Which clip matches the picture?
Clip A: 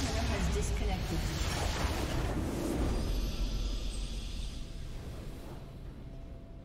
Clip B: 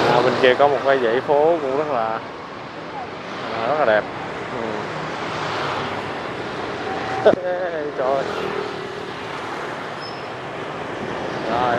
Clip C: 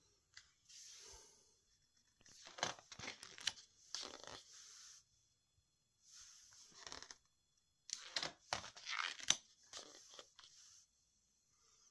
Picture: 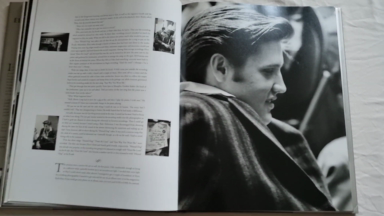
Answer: C